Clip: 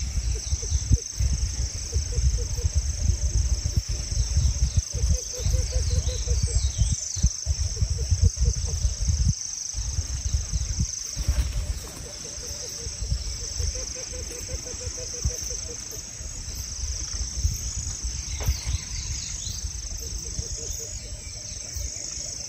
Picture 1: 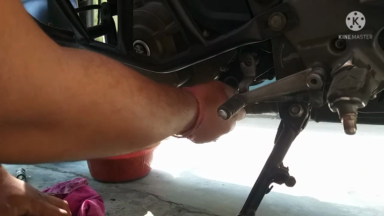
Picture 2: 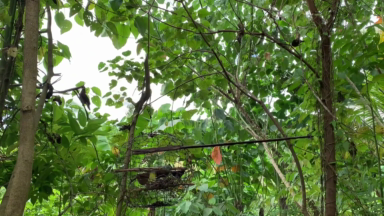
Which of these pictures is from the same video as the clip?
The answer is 2